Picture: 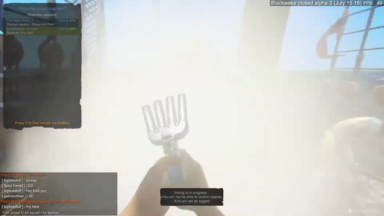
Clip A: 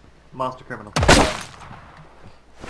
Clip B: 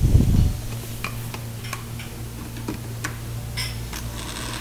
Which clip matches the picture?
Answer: A